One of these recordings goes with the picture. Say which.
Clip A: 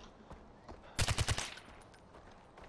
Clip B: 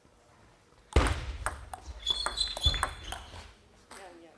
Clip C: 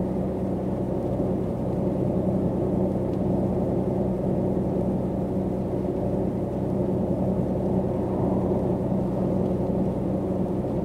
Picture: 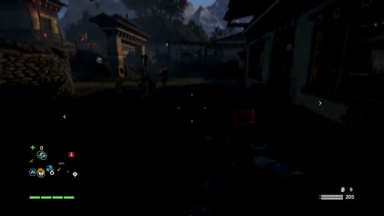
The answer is A